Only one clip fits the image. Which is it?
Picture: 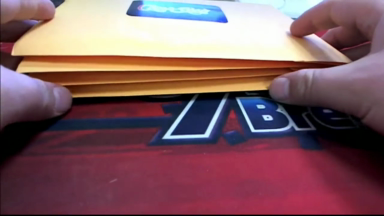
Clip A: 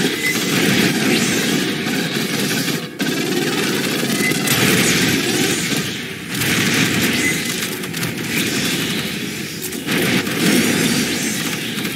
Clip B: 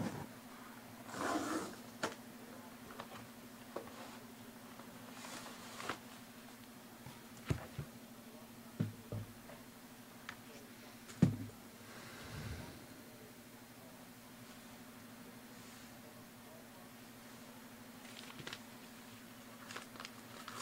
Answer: B